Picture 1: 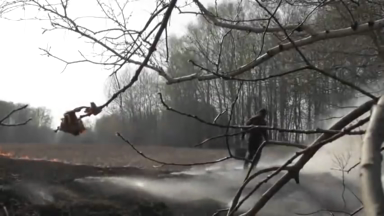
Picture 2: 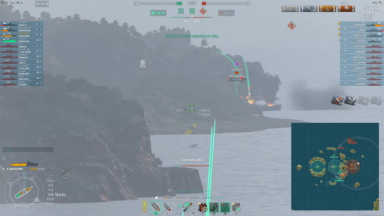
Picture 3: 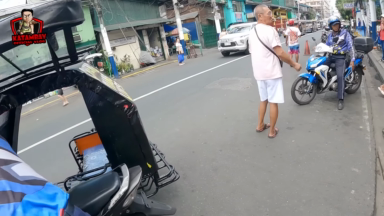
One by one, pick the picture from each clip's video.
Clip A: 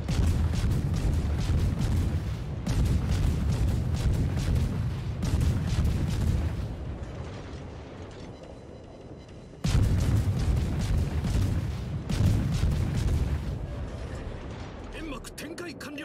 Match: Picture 2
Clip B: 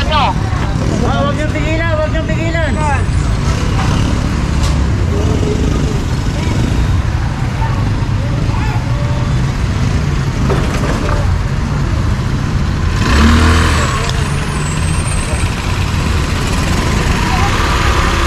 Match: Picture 3